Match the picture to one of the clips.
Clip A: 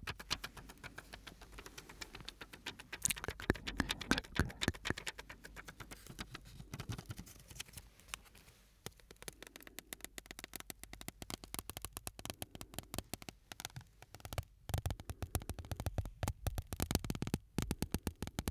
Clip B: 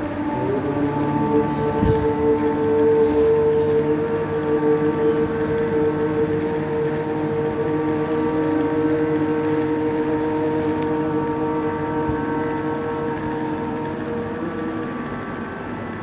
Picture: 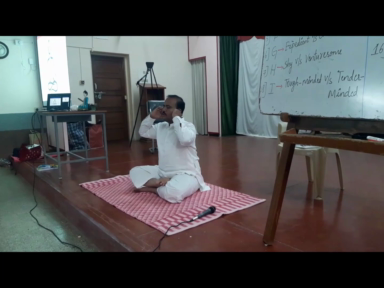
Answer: B